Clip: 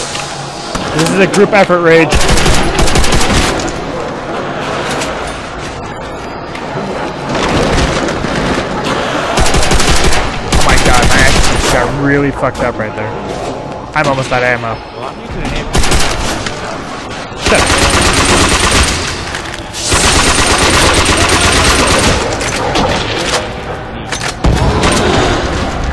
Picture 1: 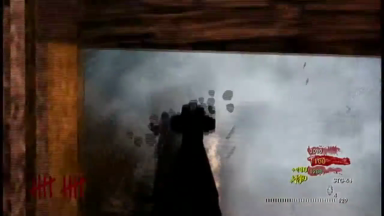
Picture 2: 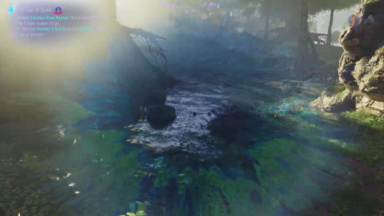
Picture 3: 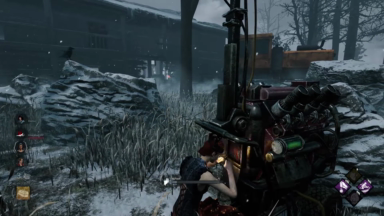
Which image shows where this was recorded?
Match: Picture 1